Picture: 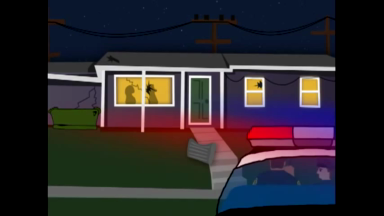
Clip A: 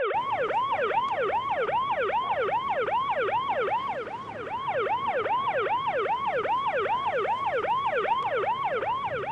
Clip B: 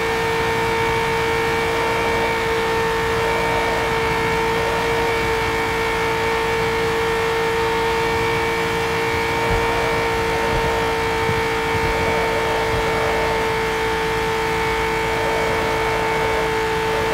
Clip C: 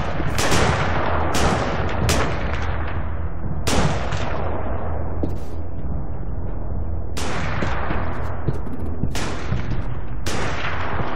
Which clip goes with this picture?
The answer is A